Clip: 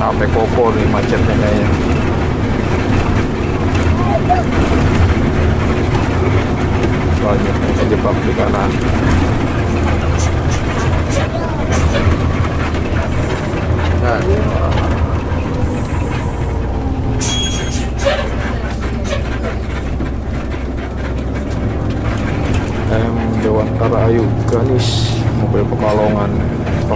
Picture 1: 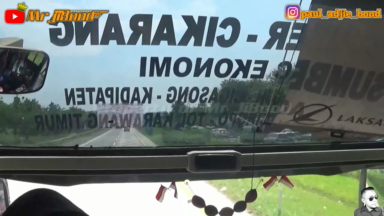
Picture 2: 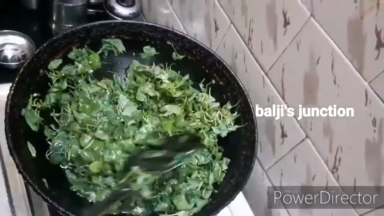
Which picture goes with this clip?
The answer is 1